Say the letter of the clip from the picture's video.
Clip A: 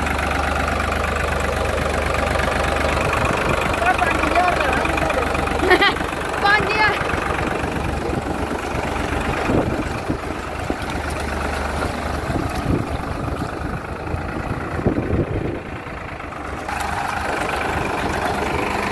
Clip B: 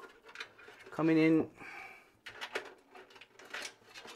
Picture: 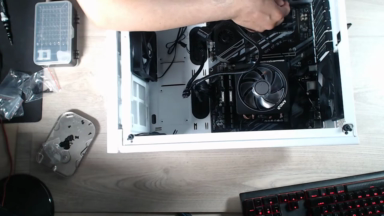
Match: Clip B